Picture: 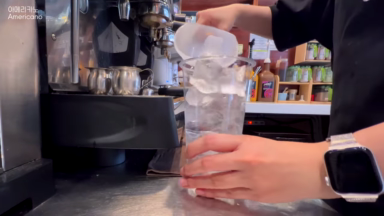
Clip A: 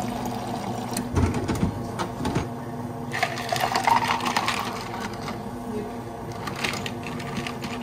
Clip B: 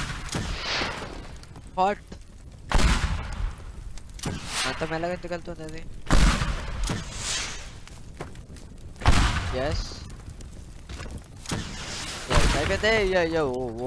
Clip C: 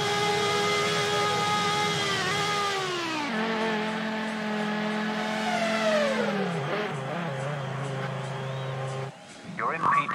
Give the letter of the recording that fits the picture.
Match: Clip A